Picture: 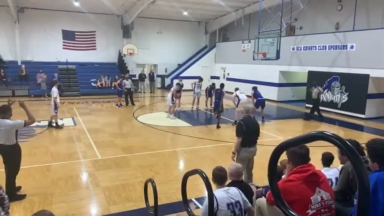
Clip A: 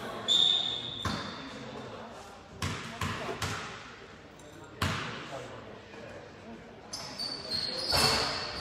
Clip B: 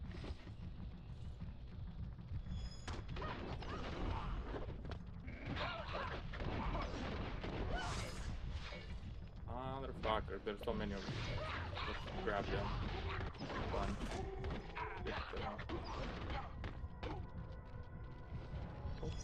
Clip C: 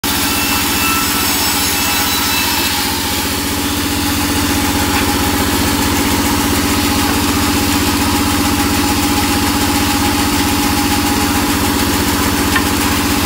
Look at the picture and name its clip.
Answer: A